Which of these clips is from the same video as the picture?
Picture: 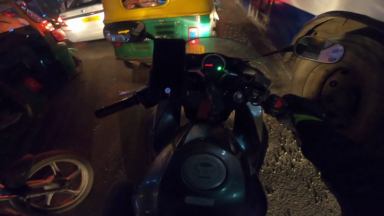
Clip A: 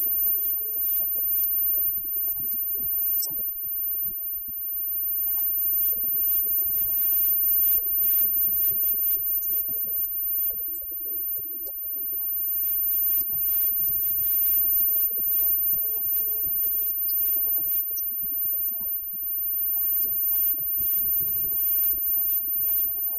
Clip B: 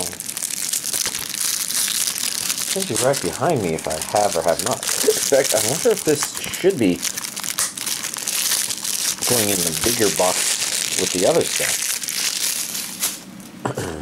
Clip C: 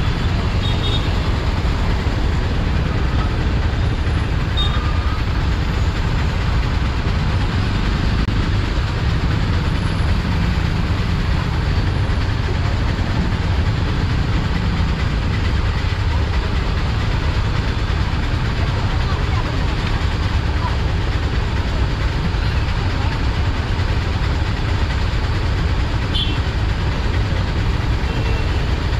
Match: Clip C